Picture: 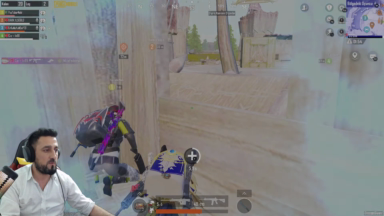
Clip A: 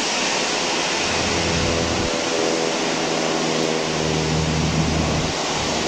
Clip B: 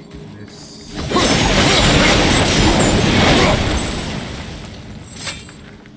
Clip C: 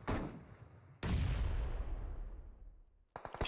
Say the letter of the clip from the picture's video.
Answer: C